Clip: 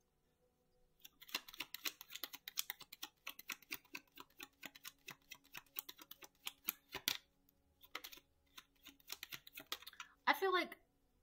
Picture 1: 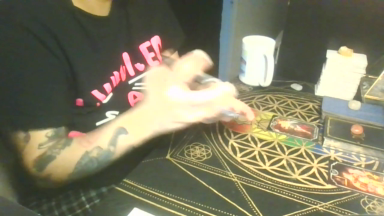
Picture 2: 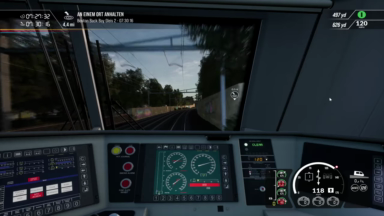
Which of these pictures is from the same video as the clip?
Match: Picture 1